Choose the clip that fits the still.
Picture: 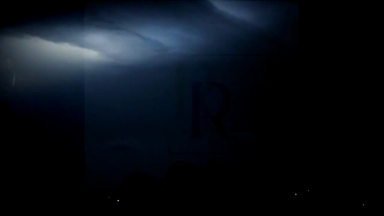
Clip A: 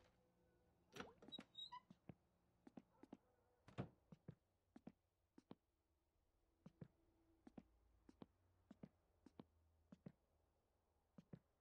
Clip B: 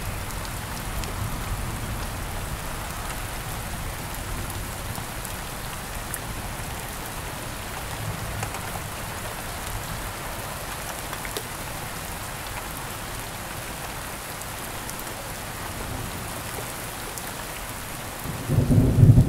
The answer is B